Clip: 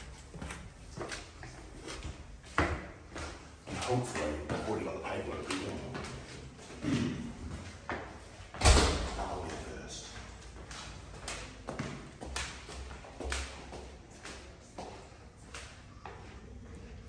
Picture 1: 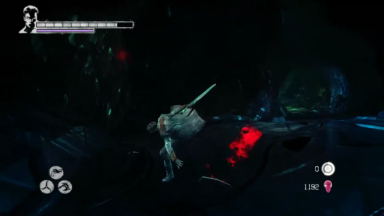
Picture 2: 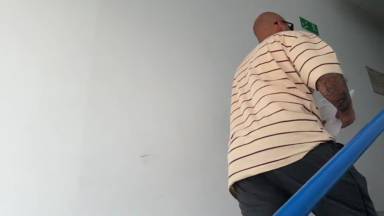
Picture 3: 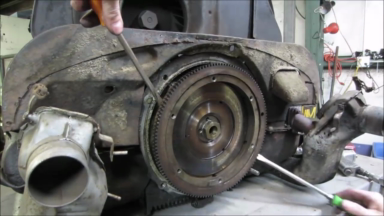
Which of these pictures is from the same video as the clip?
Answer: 2